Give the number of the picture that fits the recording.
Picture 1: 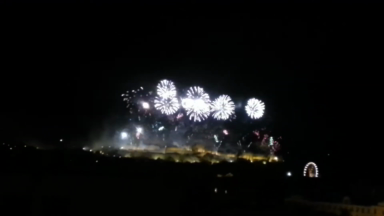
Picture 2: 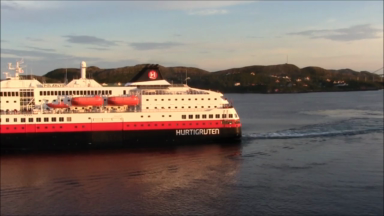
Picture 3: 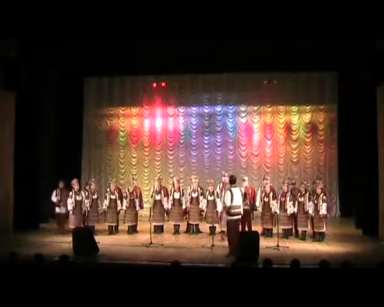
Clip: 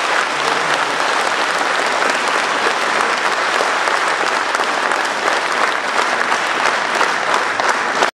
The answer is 3